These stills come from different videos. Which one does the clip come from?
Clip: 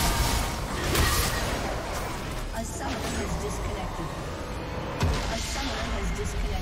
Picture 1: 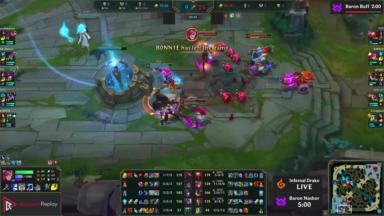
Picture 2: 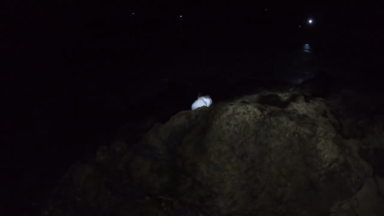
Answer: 1